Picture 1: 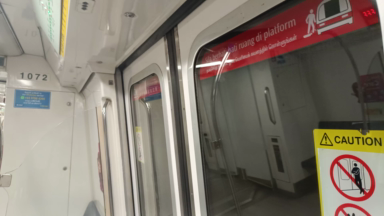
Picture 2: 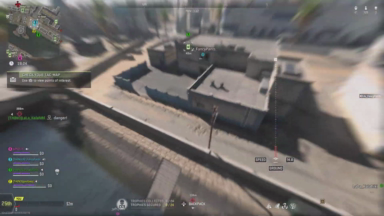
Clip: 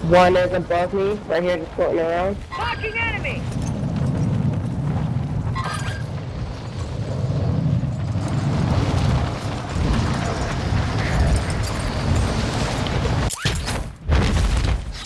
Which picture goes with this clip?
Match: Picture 2